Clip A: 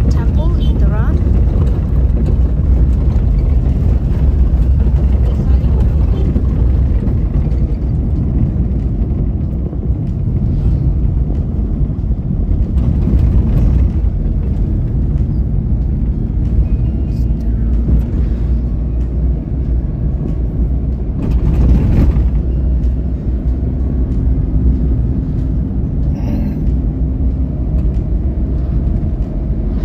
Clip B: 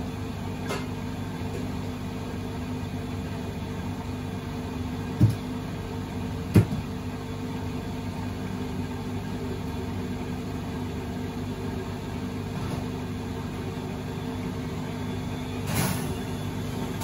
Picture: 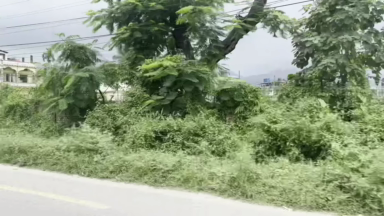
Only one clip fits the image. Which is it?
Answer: A